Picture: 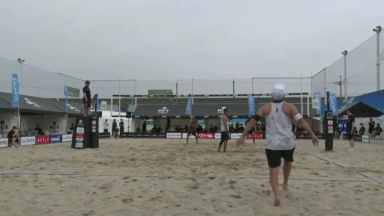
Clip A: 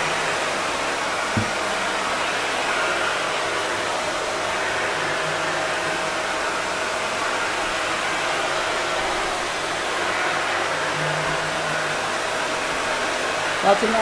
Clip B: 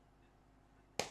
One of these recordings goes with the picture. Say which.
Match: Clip B